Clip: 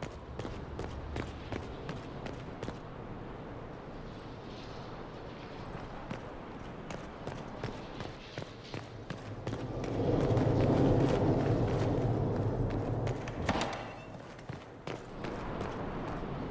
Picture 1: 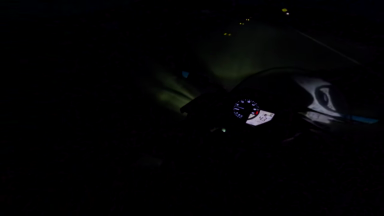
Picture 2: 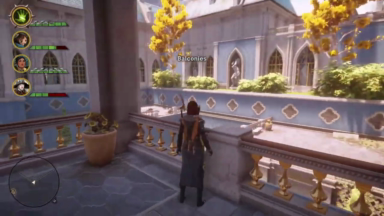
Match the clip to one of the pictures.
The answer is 2